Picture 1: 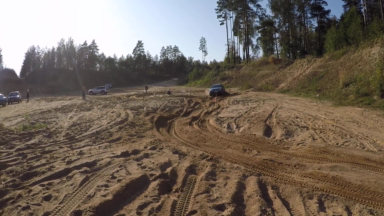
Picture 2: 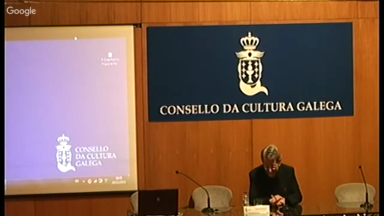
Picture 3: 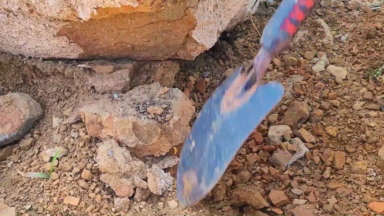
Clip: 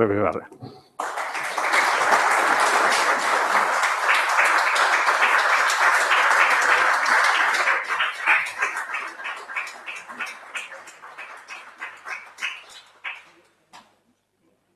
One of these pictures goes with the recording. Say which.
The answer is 2